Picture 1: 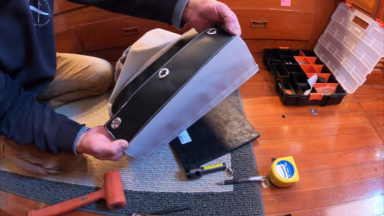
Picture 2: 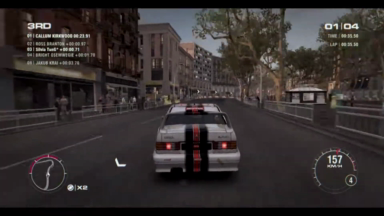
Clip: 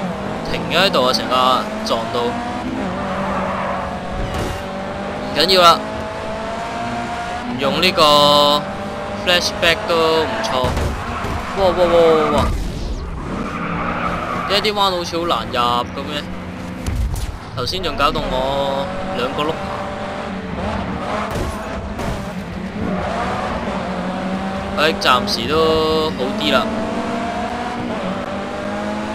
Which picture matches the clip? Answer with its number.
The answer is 2